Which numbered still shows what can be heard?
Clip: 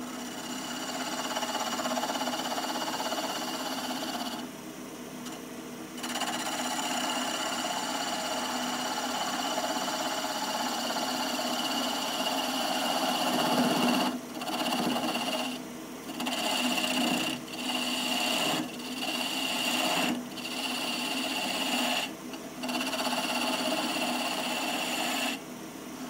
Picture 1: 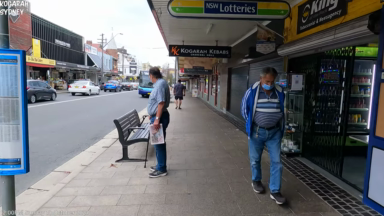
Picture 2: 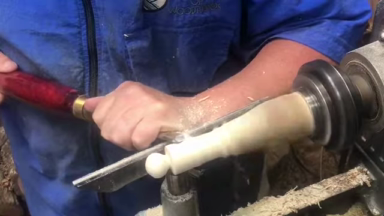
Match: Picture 2